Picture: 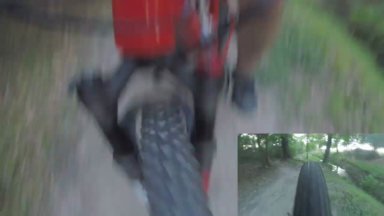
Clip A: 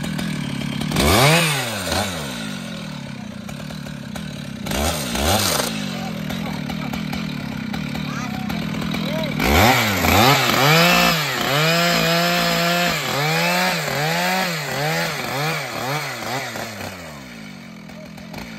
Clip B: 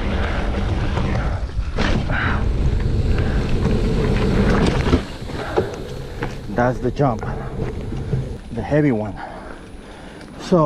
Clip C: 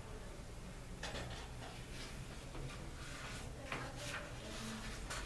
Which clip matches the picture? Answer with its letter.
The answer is B